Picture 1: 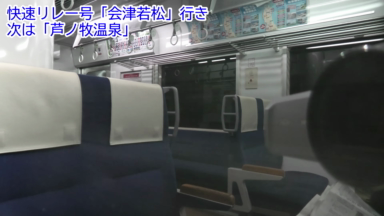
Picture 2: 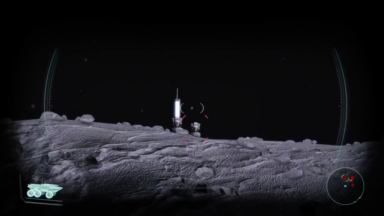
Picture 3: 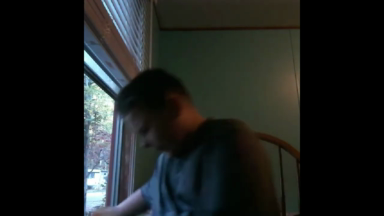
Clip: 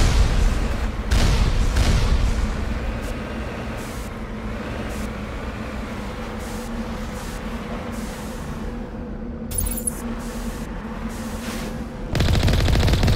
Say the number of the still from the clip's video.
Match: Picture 2